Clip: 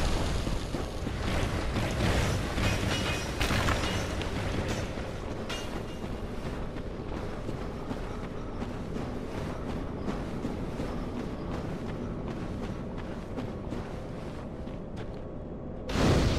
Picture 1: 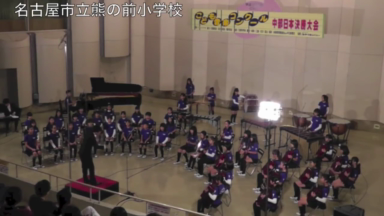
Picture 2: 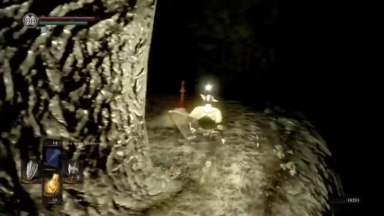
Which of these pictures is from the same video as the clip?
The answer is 2